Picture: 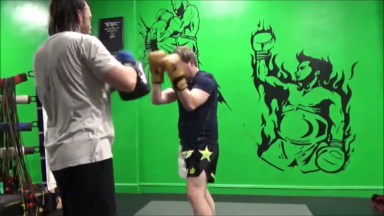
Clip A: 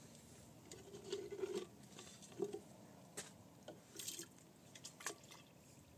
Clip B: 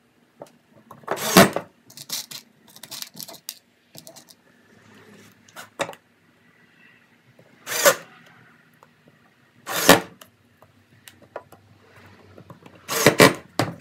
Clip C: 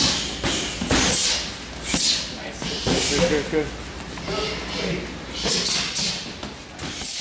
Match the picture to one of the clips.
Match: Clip C